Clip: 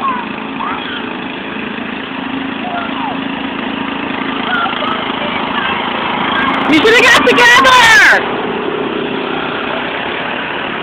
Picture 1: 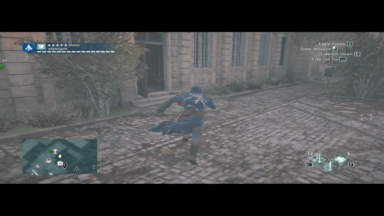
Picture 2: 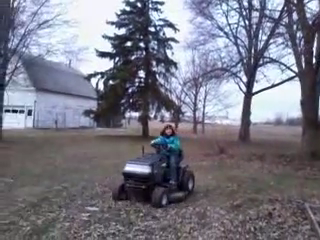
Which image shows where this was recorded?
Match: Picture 2